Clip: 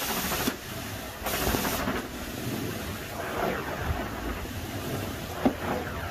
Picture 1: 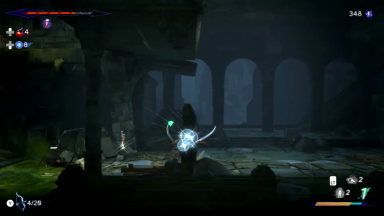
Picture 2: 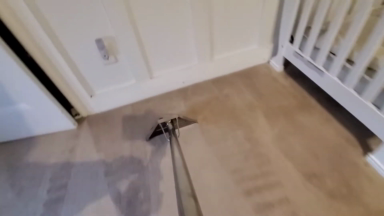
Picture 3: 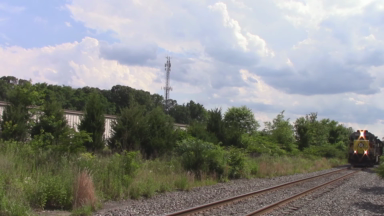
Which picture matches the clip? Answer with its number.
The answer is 2